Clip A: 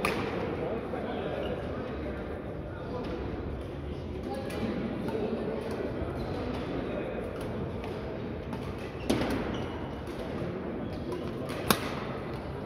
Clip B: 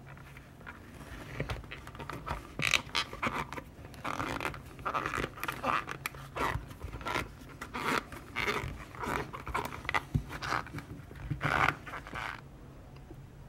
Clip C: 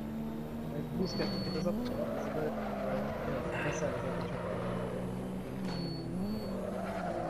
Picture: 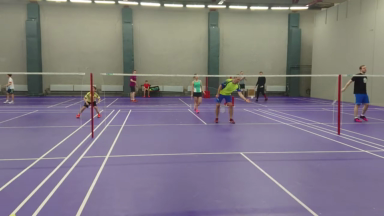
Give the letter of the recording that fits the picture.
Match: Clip A